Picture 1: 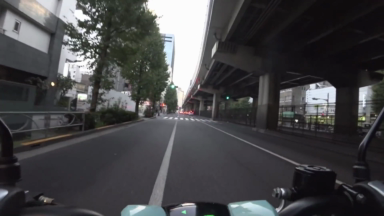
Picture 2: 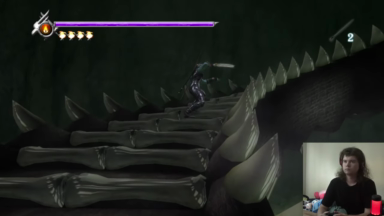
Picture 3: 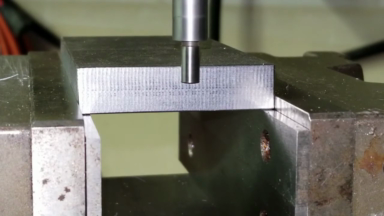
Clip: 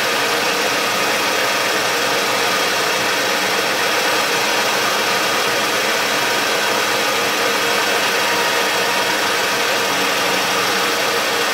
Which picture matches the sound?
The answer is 3